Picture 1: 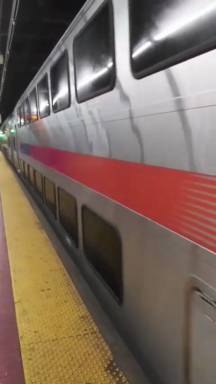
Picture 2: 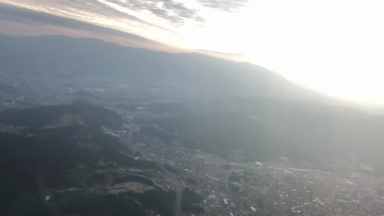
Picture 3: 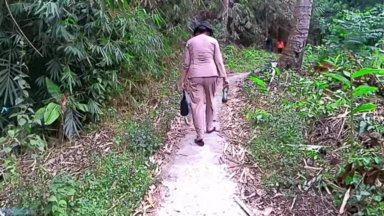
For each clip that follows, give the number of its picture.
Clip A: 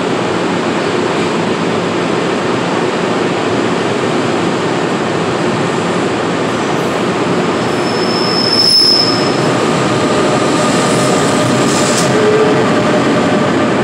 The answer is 1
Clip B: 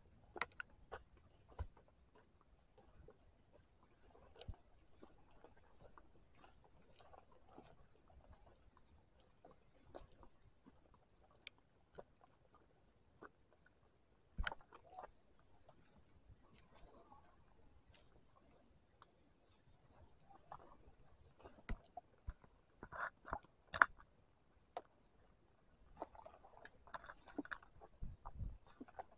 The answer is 3